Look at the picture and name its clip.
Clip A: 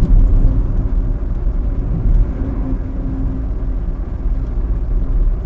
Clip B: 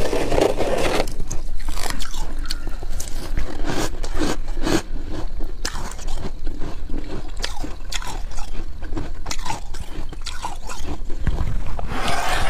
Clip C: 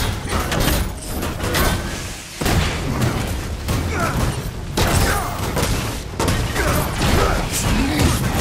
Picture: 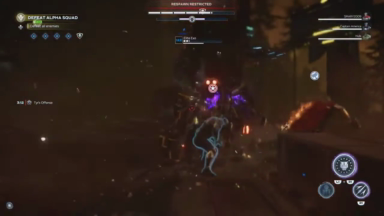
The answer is C